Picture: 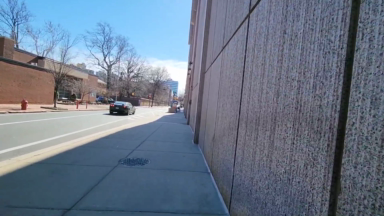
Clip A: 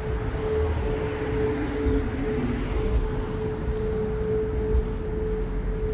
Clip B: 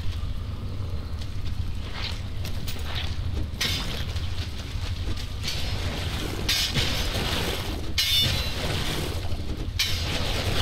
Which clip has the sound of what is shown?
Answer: A